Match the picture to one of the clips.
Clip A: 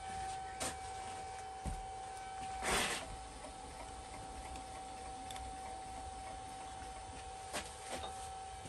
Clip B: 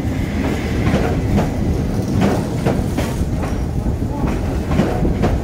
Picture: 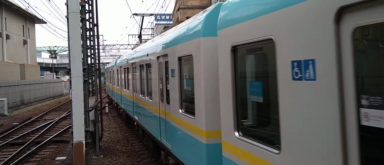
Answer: B